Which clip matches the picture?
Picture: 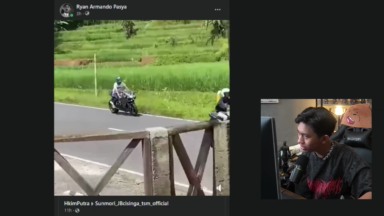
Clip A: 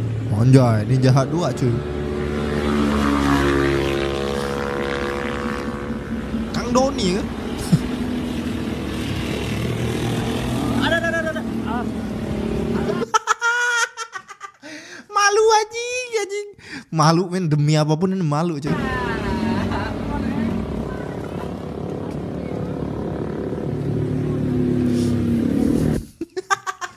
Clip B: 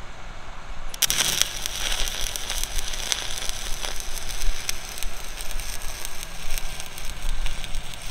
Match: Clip A